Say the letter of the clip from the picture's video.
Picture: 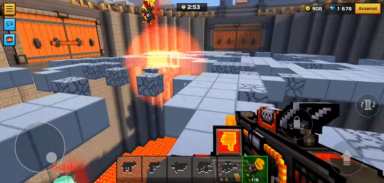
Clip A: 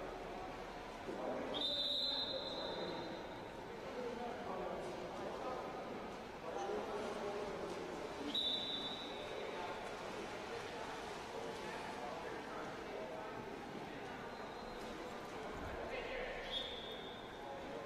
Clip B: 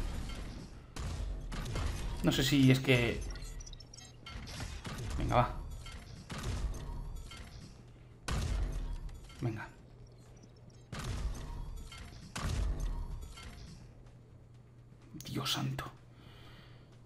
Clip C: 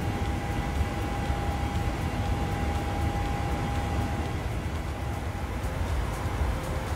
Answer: B